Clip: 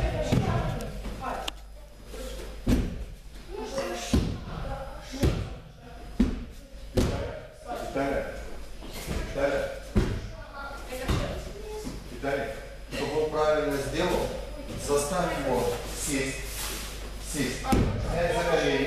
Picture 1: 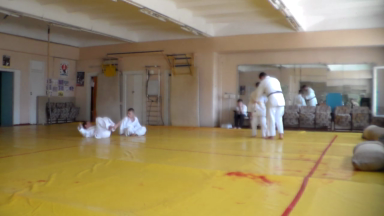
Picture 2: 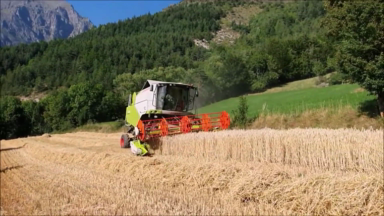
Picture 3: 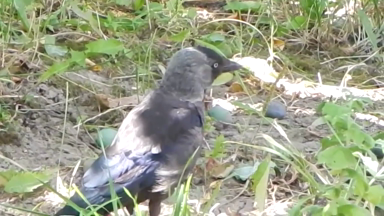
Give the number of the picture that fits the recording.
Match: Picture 1